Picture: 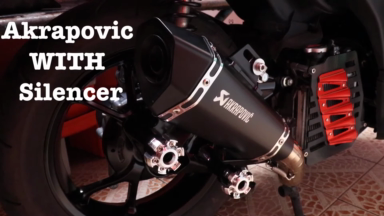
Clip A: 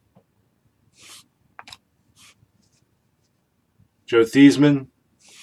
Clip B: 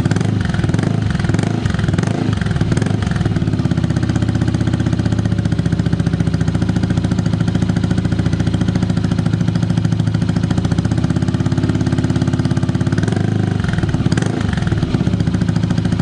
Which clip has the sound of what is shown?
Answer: B